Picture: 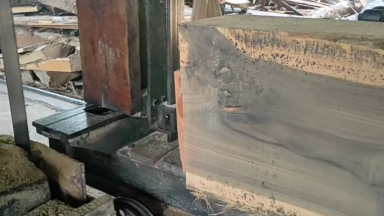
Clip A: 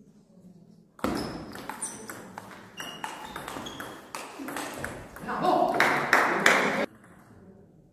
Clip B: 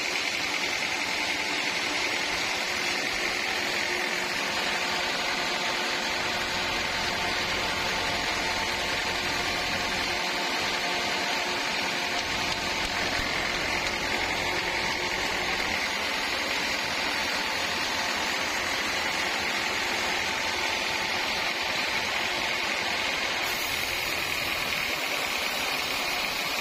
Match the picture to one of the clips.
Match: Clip B